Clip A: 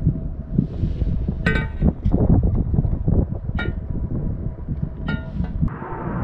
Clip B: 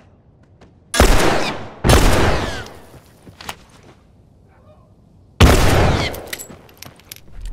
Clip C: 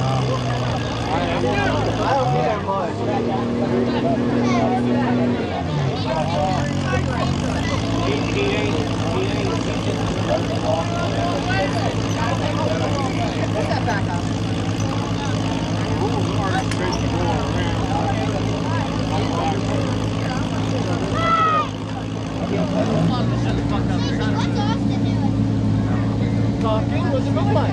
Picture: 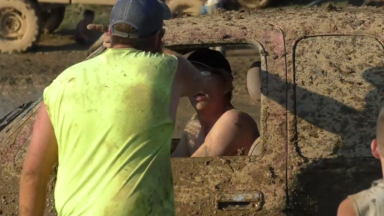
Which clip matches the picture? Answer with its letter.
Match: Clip C